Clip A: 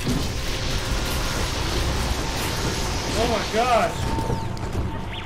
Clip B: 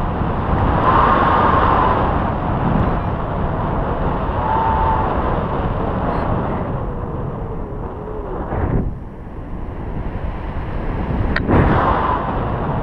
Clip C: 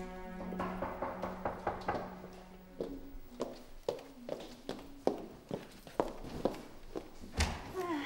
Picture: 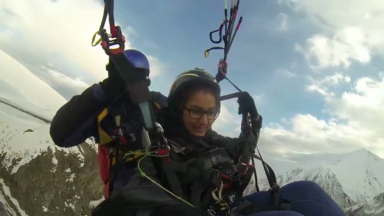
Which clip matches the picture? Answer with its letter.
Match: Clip B